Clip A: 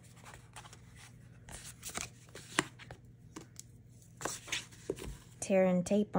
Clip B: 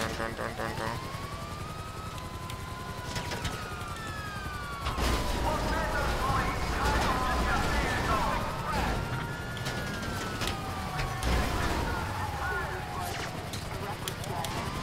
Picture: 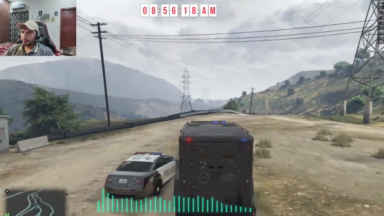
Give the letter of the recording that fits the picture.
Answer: B